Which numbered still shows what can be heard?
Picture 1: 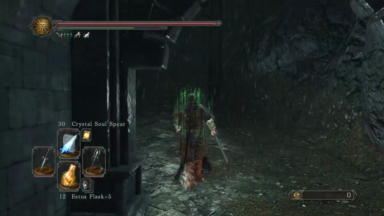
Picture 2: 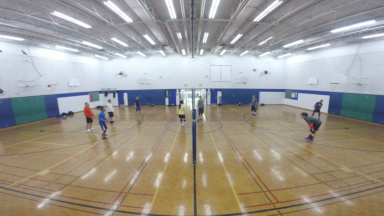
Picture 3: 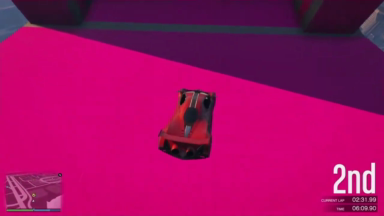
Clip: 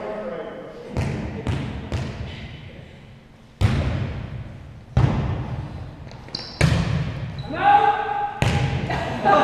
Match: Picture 2